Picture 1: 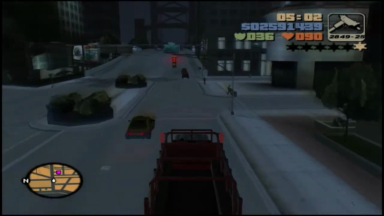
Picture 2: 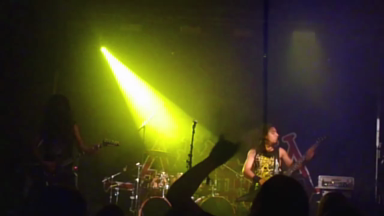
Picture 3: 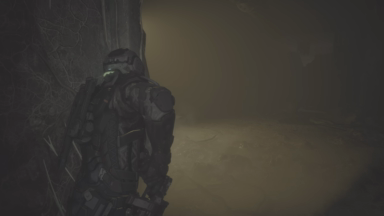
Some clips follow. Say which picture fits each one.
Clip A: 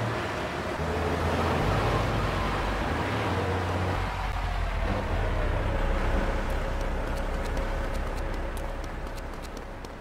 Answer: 1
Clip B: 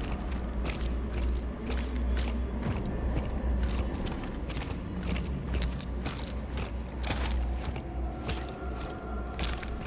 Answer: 3